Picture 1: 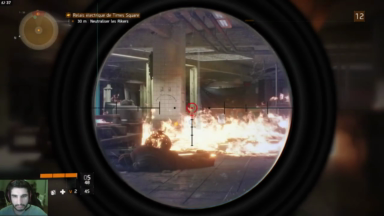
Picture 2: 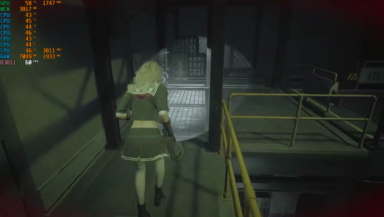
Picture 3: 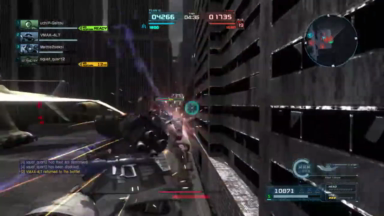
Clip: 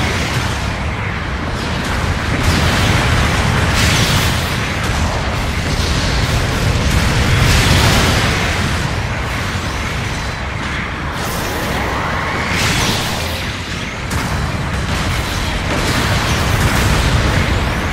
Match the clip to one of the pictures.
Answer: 3